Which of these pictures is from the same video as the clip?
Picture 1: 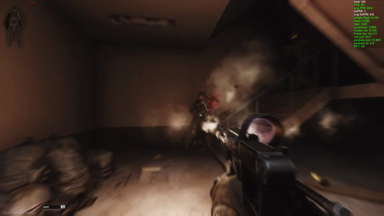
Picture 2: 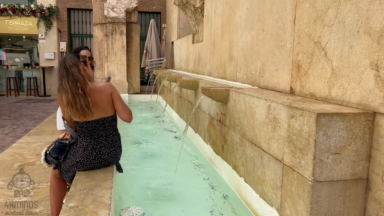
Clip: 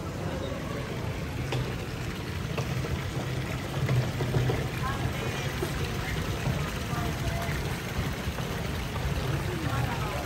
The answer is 2